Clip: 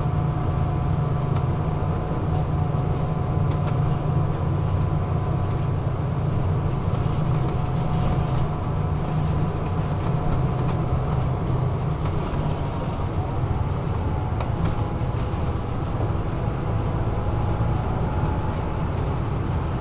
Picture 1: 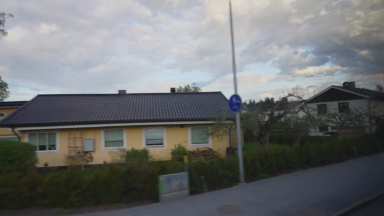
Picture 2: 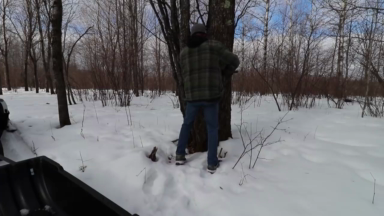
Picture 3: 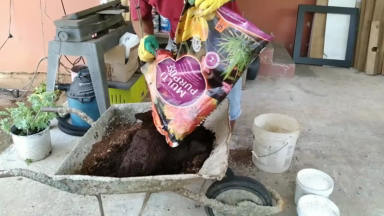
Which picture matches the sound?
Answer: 1